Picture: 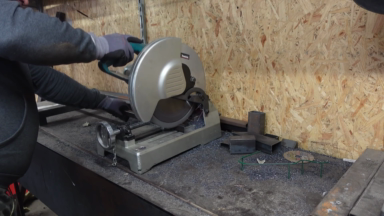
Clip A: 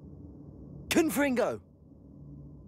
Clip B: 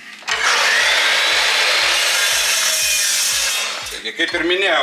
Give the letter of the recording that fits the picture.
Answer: B